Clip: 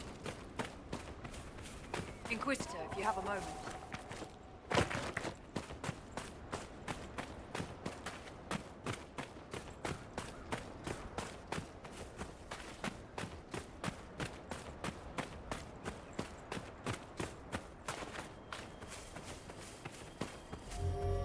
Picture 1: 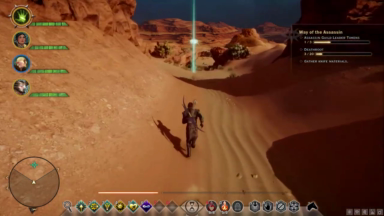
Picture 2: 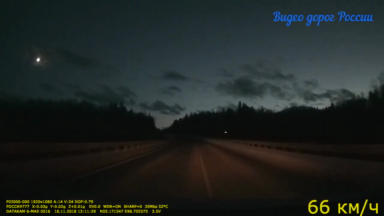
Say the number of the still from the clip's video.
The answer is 1